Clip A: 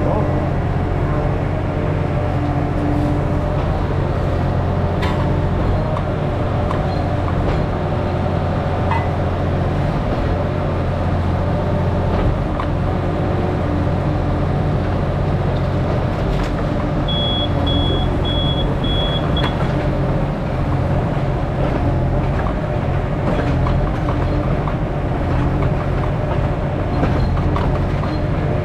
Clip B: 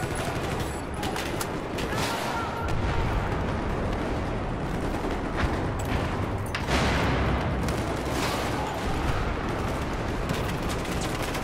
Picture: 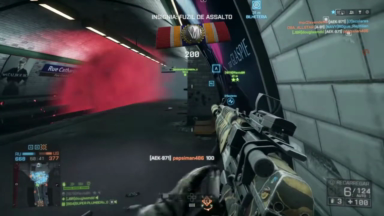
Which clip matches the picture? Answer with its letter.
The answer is B